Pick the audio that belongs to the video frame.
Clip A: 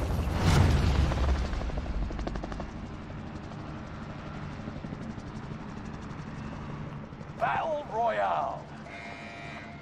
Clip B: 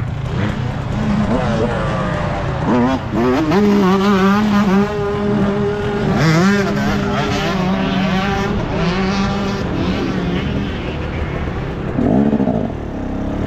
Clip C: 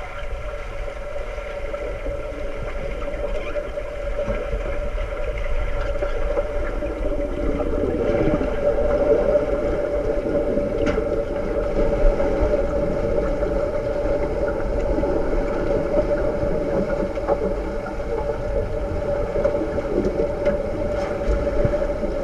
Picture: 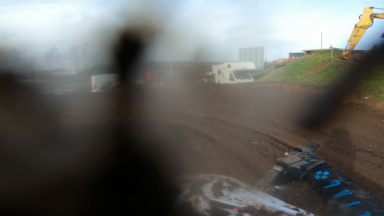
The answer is B